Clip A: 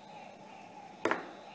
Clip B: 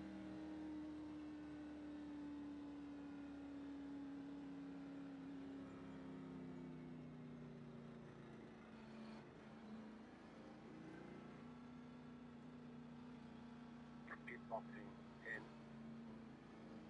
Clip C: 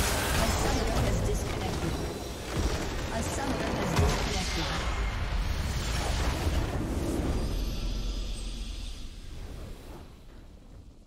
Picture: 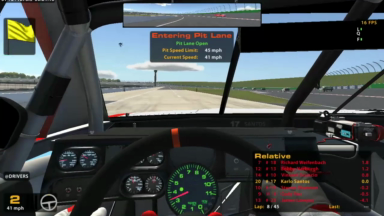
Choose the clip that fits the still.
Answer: B